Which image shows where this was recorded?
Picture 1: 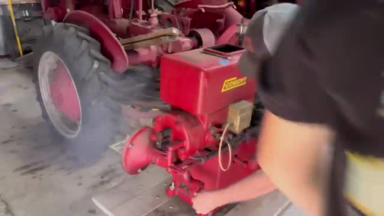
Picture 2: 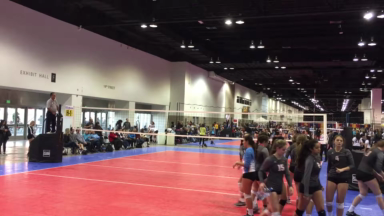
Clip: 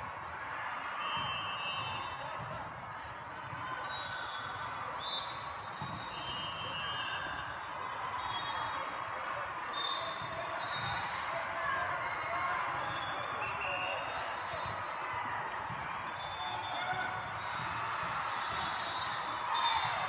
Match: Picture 2